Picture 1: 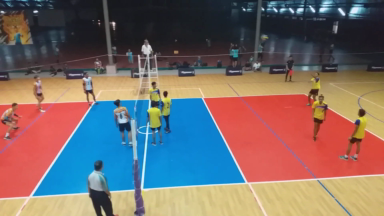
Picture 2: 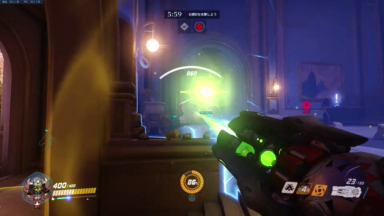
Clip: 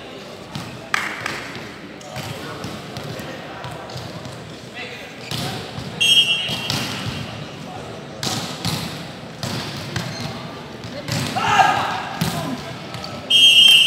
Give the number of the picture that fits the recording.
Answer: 1